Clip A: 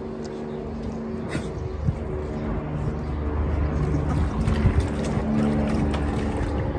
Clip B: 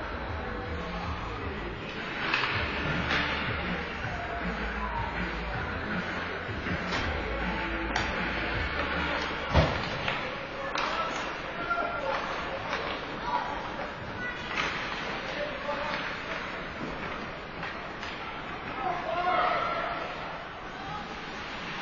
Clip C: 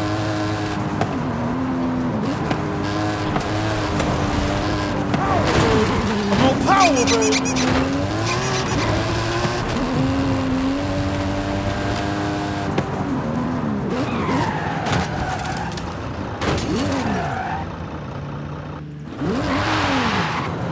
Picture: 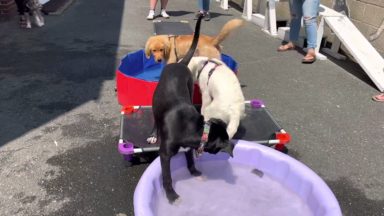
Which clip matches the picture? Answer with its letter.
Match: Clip A